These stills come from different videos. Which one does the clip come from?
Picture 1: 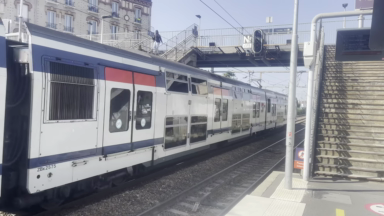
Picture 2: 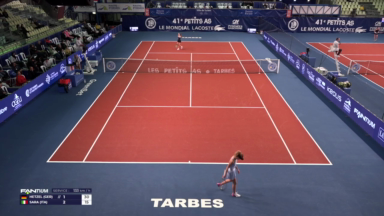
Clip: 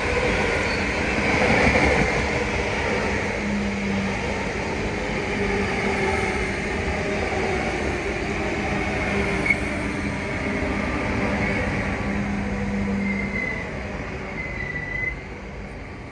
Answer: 1